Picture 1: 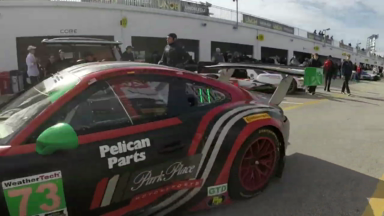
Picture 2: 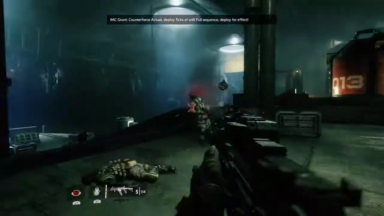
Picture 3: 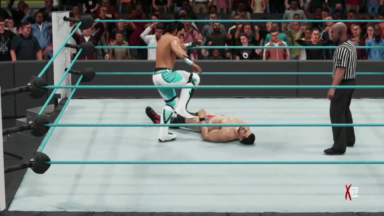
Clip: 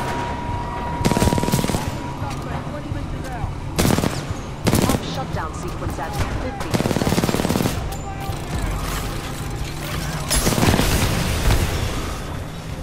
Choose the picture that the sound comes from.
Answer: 2